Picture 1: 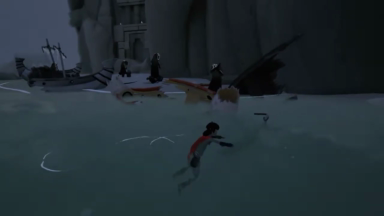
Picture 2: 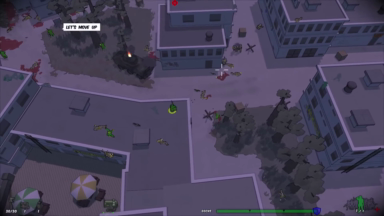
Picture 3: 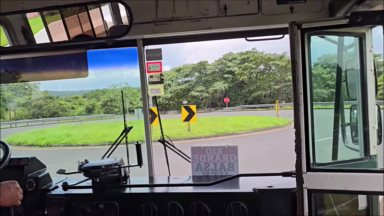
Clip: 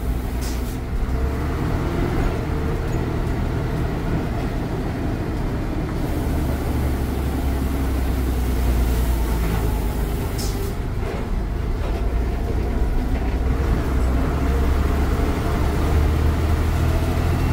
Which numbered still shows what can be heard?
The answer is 3